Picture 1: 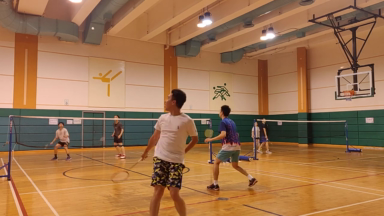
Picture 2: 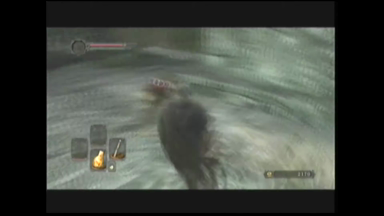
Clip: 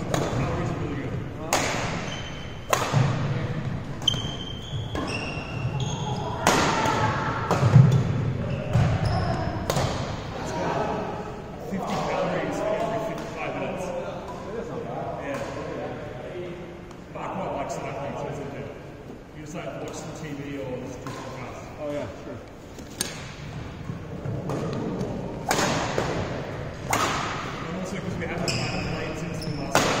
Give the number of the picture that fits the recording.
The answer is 1